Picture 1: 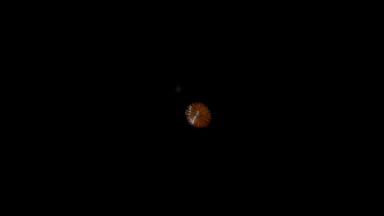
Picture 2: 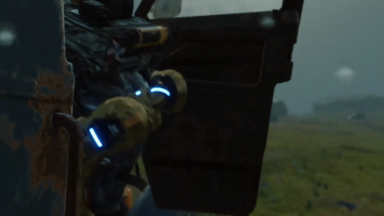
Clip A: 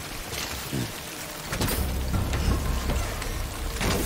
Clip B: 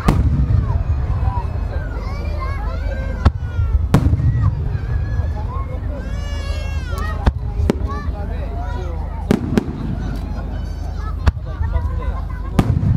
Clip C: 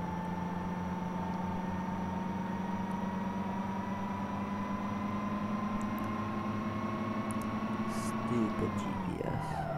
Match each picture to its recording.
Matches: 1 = B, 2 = A